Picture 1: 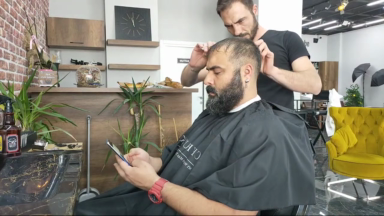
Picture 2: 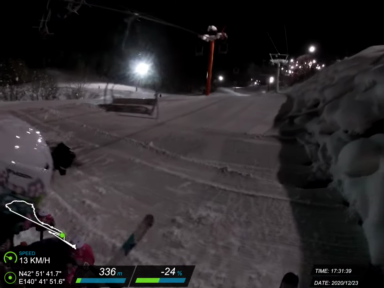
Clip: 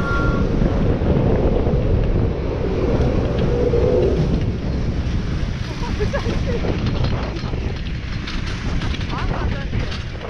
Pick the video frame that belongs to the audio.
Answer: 2